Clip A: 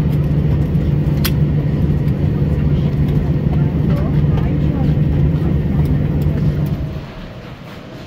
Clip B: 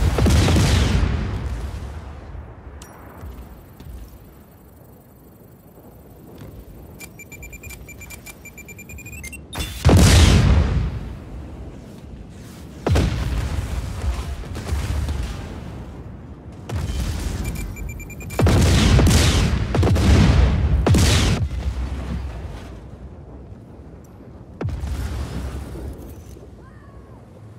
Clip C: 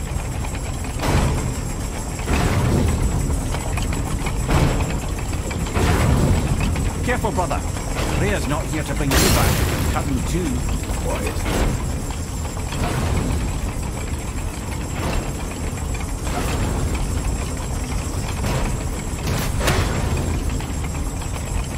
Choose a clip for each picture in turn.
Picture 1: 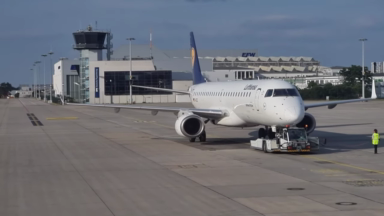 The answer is A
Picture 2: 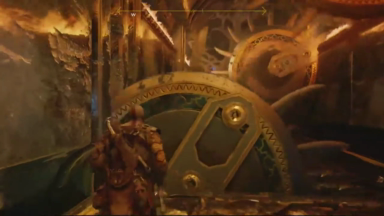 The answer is C